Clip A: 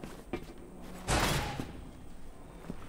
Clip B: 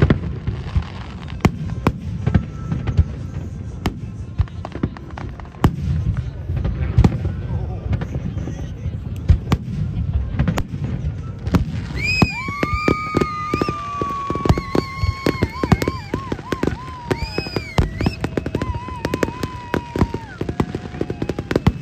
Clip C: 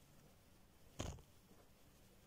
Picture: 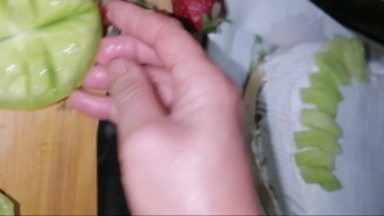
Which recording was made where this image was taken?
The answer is C